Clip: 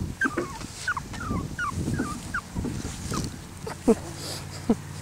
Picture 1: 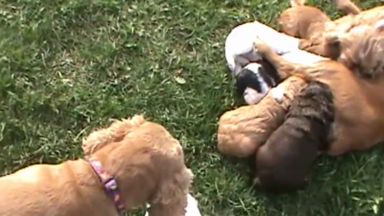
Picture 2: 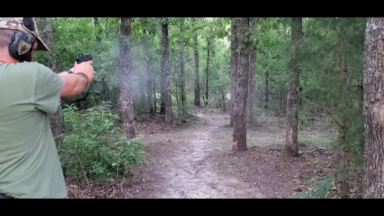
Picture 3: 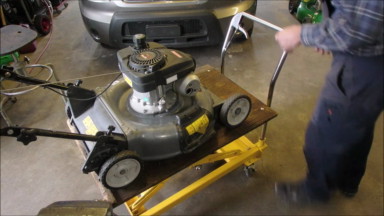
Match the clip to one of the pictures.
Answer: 1